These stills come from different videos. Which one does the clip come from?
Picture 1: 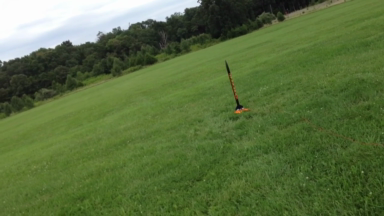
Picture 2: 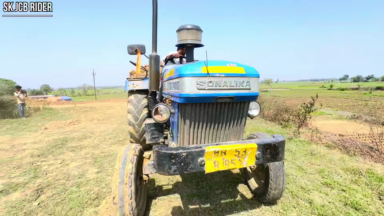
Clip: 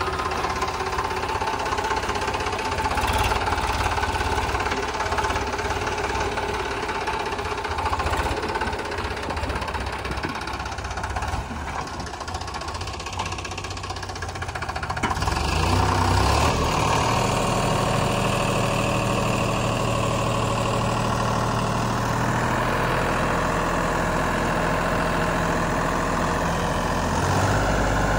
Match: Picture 2